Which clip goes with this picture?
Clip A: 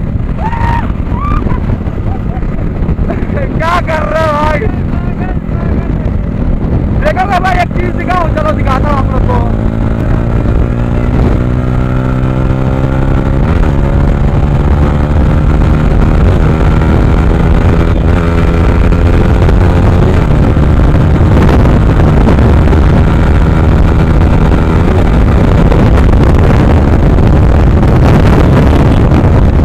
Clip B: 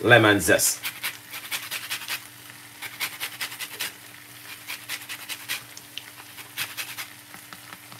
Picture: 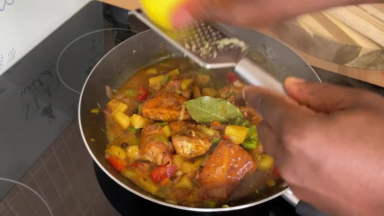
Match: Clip B